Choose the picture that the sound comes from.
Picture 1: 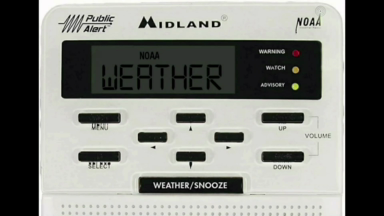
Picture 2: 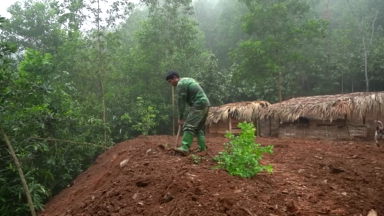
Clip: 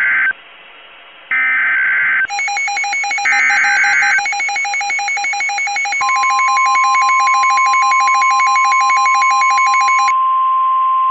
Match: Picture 1